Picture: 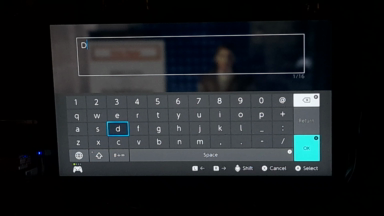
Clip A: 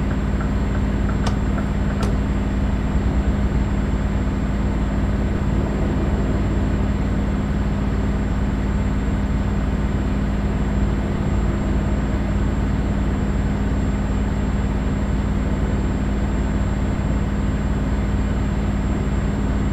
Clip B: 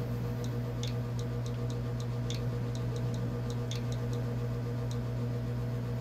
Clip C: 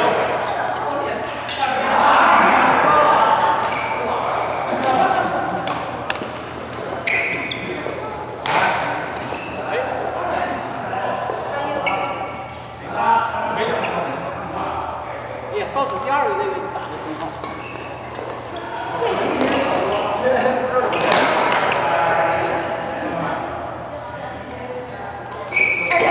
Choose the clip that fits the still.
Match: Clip B